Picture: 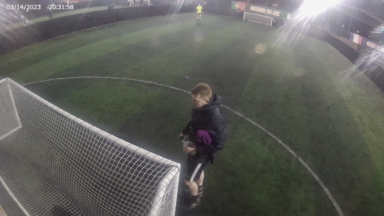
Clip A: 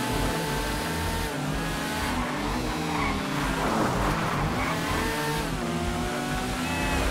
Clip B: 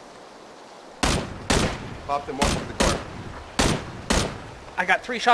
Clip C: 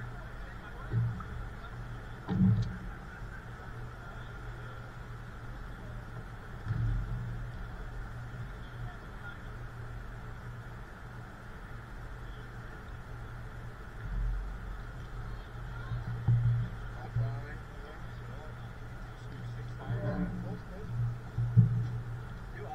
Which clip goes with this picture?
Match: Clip C